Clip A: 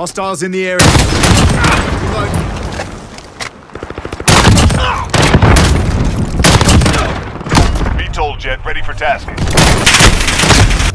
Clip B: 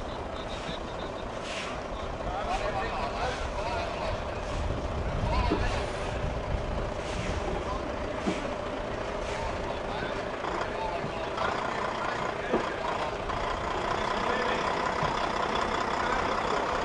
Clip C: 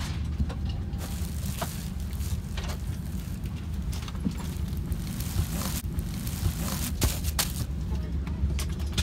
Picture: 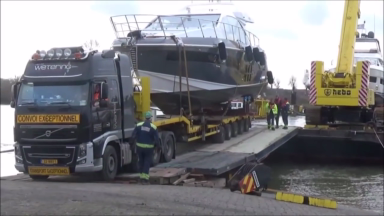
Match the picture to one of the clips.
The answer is B